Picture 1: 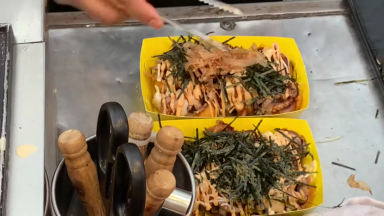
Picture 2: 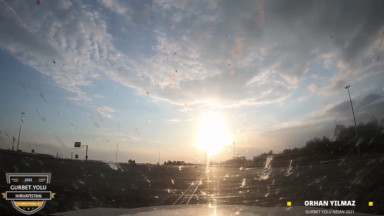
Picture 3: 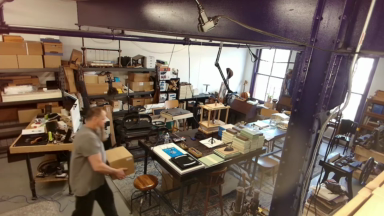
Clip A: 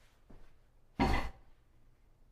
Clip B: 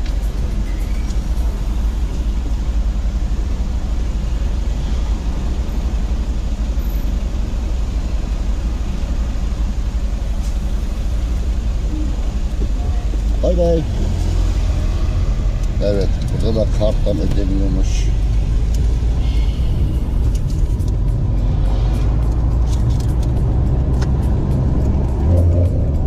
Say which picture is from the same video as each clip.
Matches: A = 3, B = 2